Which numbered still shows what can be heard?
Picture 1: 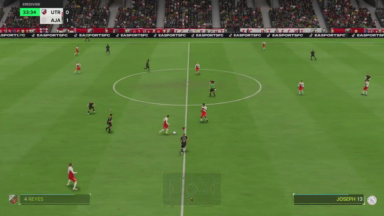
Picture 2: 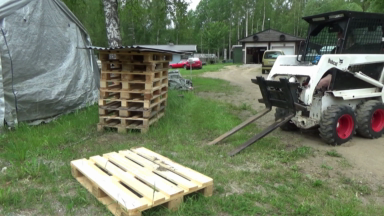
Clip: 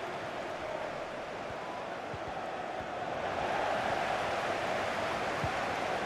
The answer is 1